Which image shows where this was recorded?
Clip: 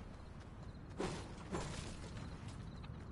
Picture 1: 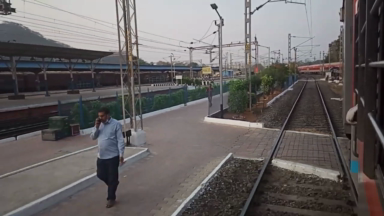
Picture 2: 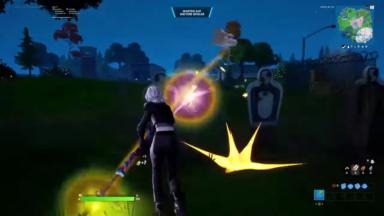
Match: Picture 2